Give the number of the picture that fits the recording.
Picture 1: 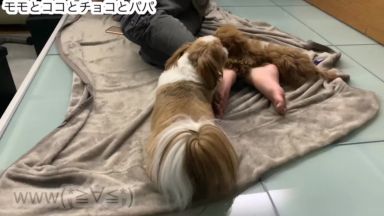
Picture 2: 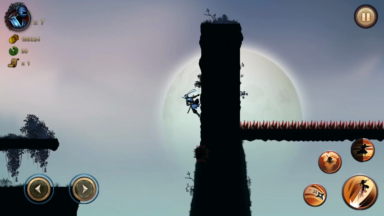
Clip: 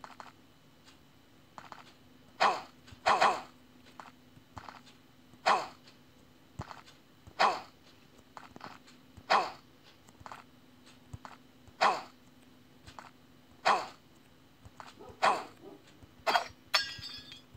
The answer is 2